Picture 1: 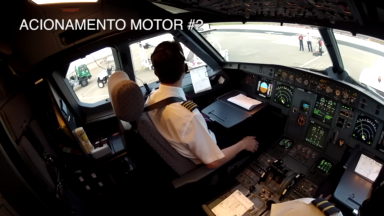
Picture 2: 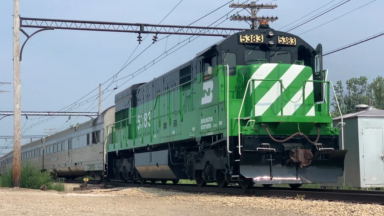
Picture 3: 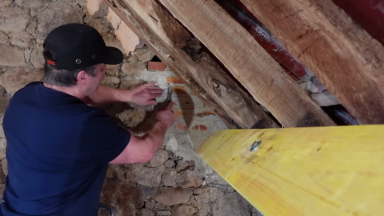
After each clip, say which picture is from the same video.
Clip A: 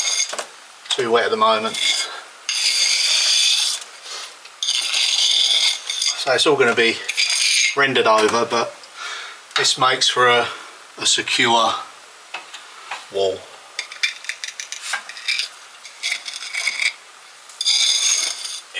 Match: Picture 3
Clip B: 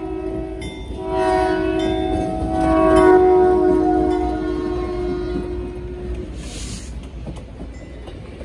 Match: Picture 2